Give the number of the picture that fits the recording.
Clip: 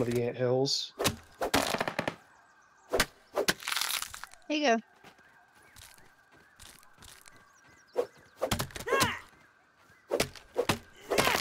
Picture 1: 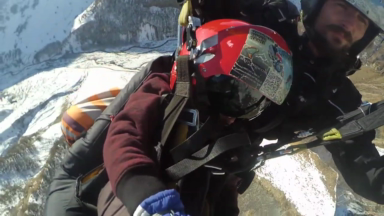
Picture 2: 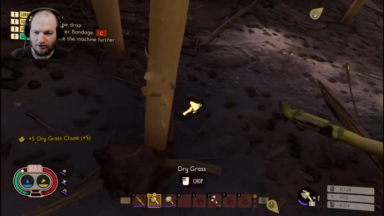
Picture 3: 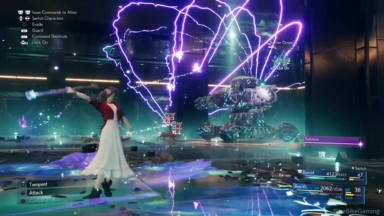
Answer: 2